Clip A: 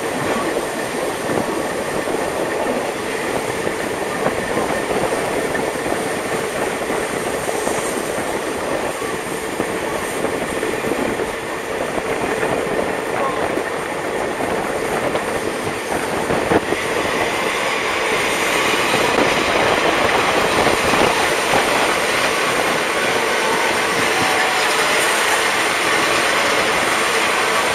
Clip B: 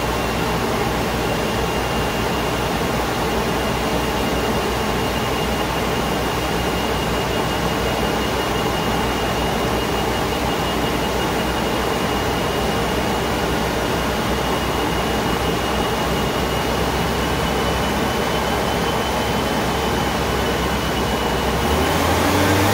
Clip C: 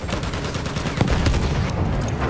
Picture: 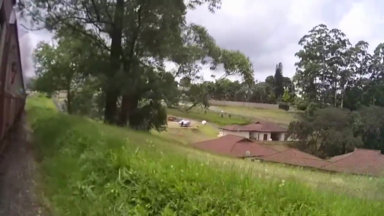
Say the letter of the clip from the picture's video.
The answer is A